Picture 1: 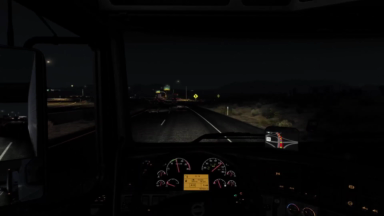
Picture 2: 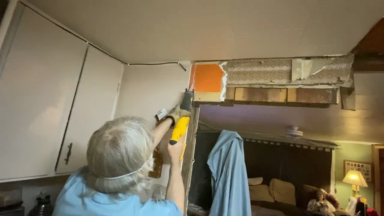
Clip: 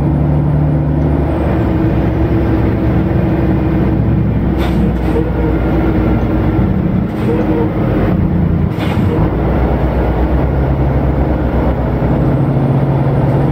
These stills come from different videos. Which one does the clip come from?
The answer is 1